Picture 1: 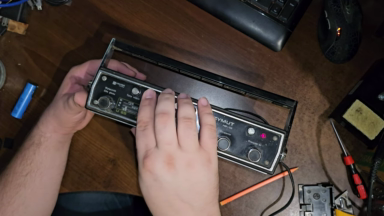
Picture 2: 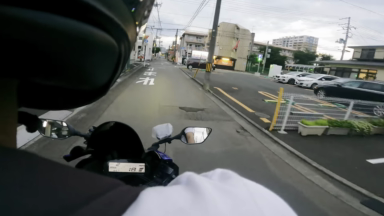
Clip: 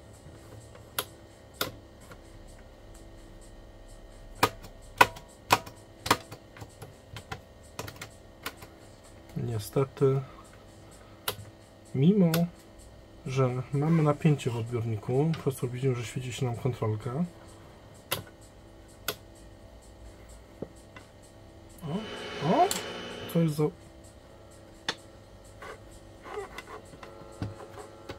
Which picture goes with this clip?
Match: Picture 1